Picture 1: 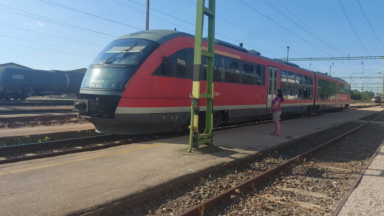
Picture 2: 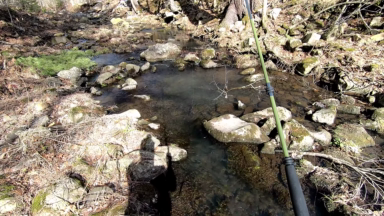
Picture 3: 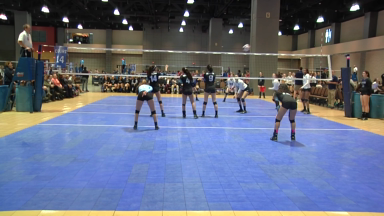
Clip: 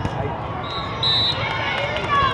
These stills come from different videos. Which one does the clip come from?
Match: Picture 3